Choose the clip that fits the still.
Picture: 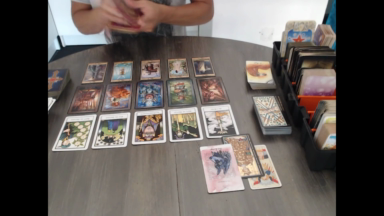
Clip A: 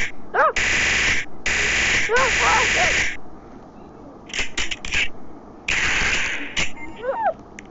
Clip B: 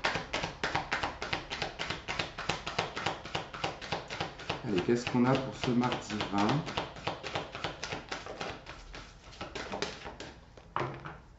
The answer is B